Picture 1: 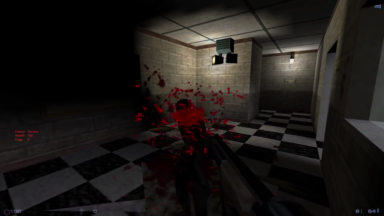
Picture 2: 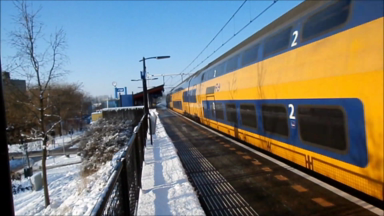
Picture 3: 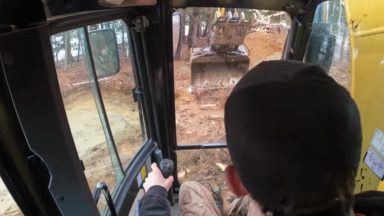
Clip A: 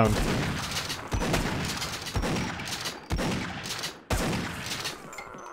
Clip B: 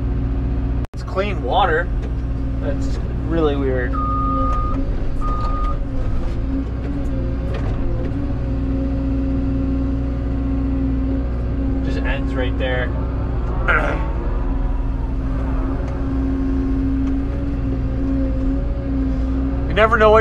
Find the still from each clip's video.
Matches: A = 1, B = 3